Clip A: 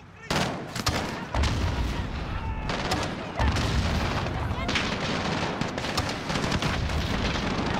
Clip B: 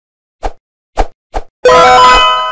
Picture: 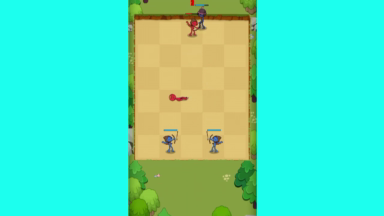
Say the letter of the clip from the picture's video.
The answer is B